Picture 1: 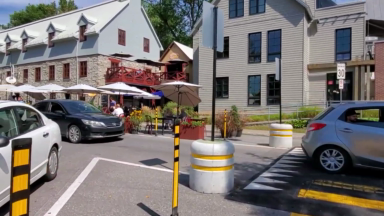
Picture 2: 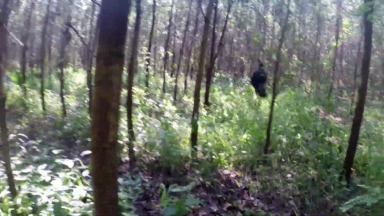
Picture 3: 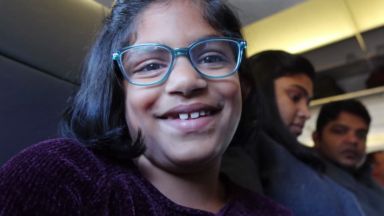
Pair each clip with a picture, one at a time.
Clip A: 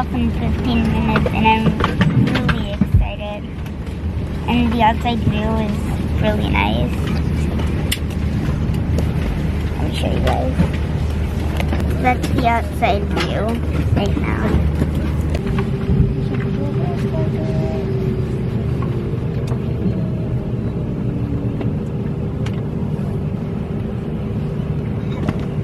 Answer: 3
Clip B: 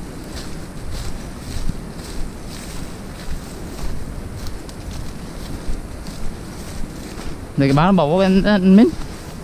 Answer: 2